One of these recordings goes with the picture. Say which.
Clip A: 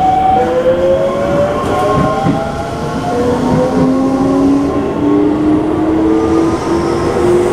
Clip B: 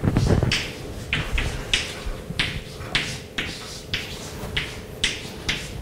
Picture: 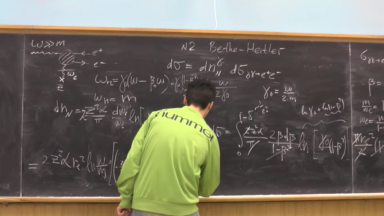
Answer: B